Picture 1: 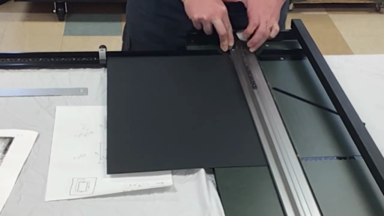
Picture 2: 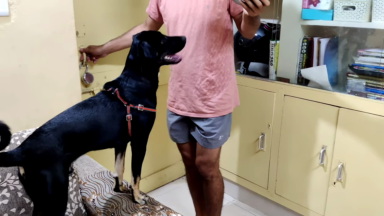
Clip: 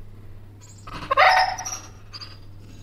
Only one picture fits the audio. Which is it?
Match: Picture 2